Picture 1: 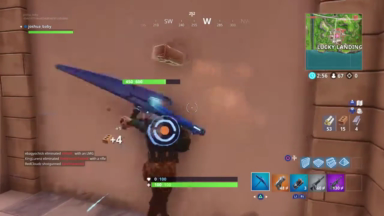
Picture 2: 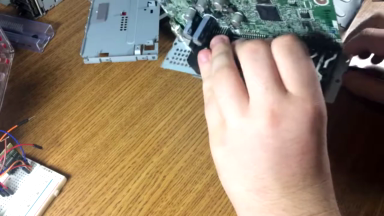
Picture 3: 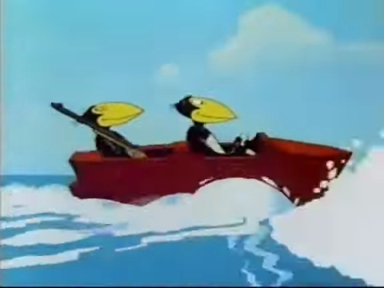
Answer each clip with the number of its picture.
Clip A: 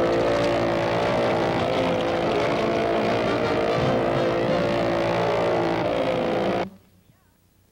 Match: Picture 3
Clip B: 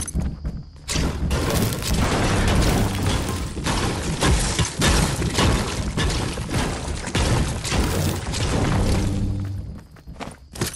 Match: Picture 1